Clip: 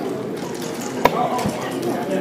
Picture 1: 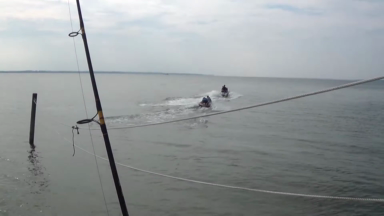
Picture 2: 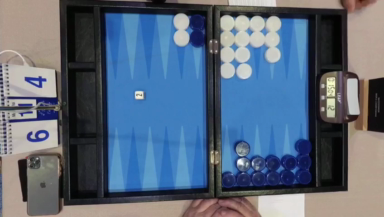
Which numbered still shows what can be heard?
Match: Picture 2